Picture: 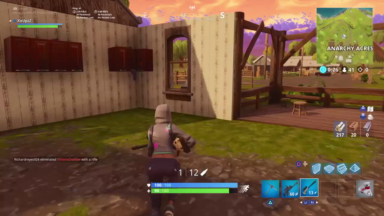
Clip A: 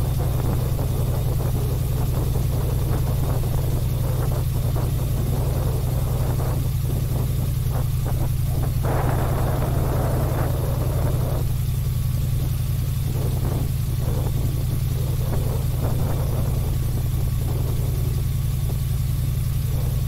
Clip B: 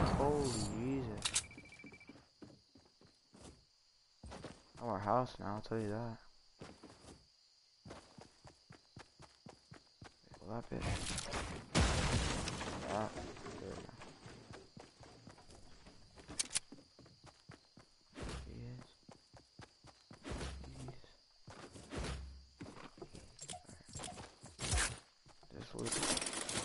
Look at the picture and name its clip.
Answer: B